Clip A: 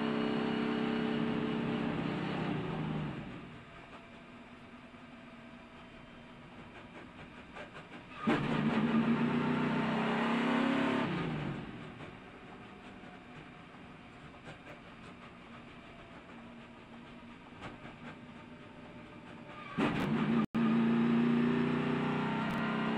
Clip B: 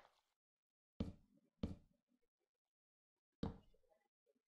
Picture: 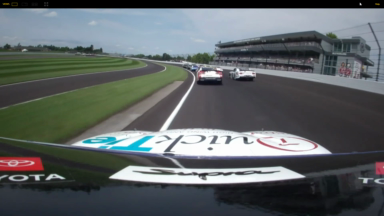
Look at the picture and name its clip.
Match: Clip A